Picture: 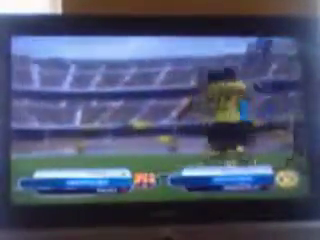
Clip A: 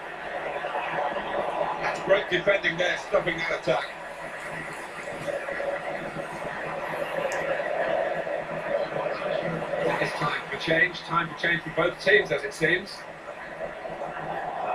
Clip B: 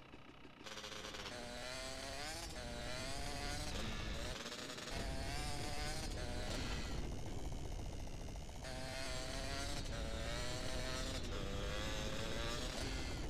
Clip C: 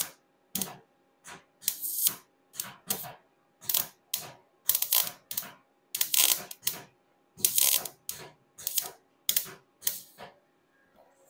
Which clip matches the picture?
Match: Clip A